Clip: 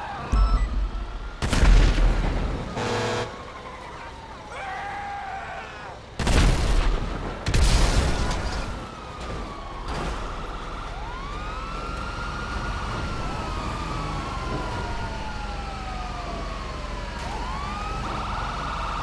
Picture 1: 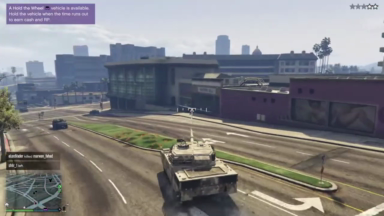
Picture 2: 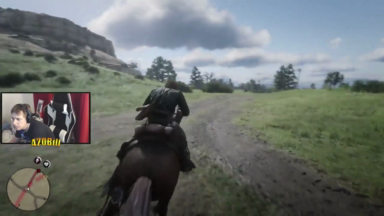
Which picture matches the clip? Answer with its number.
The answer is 1